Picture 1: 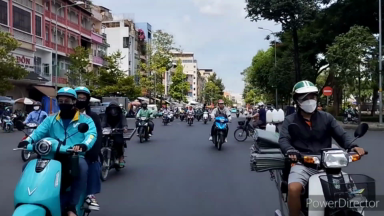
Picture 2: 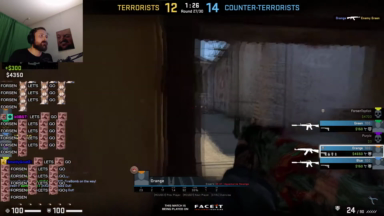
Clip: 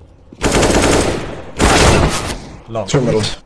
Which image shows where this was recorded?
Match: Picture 2